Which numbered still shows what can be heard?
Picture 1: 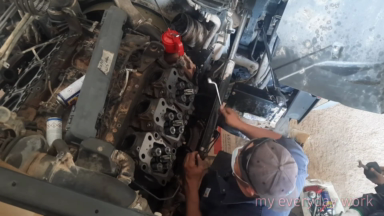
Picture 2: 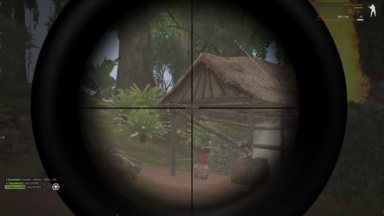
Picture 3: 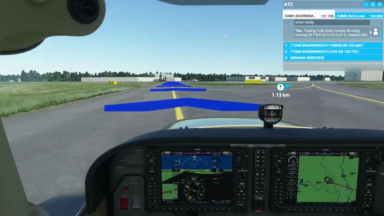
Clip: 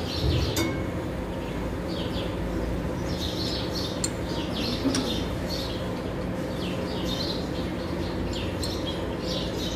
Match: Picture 1